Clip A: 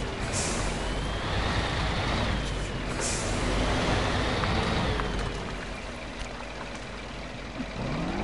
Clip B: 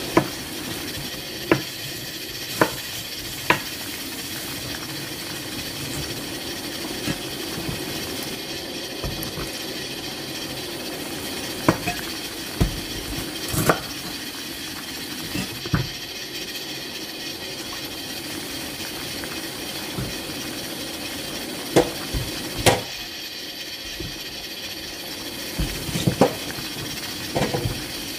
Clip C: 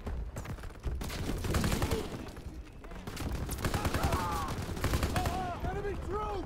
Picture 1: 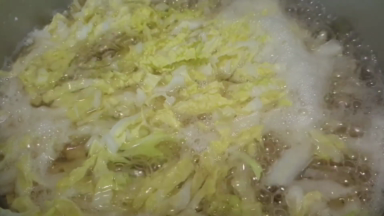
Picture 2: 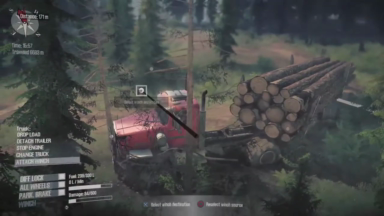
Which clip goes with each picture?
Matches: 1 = B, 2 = A